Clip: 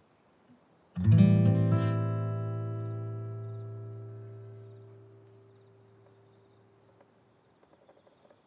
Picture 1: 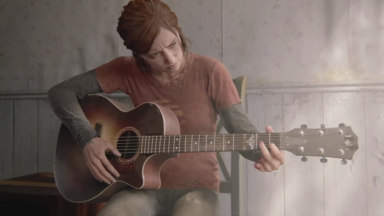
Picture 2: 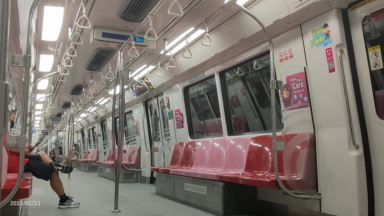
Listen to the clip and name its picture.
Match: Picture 1